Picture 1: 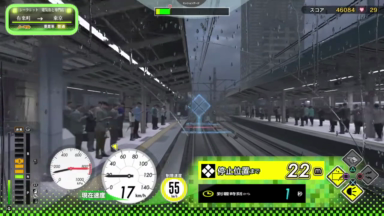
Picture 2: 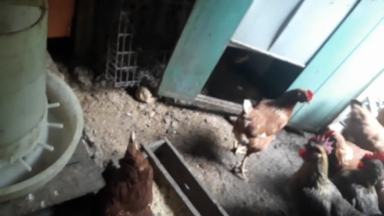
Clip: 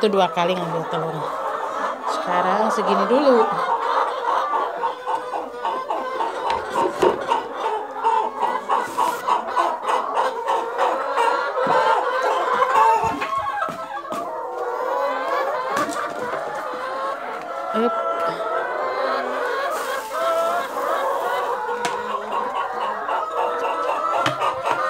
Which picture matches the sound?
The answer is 2